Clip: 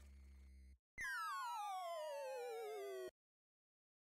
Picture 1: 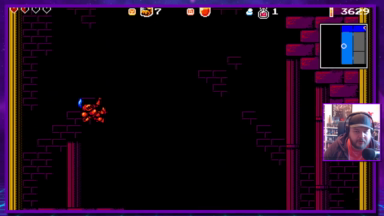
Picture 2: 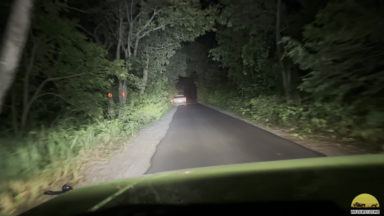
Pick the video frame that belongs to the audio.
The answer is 1